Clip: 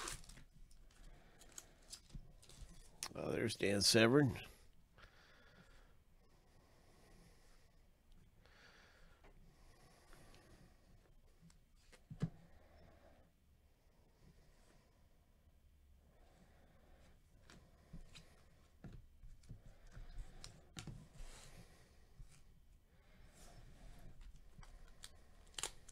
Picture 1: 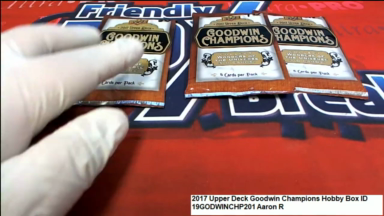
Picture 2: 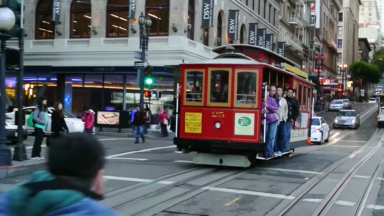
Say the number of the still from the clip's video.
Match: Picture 1